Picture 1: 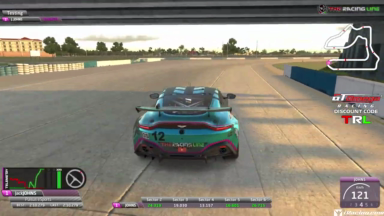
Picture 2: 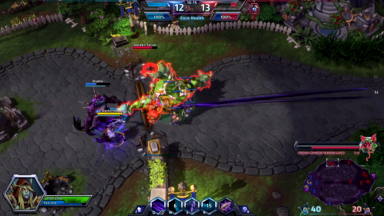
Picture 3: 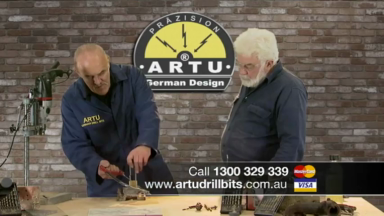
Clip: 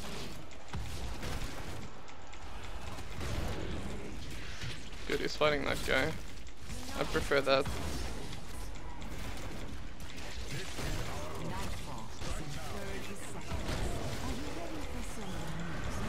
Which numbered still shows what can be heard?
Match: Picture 2